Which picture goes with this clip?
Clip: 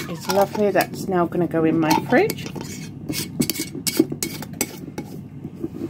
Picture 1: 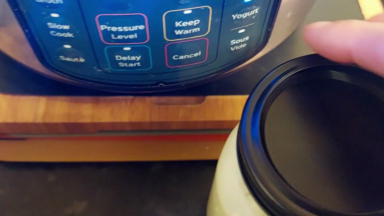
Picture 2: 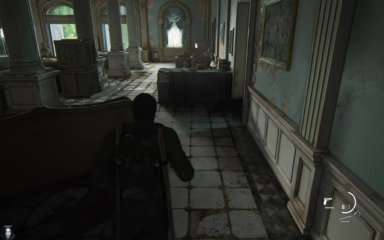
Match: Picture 1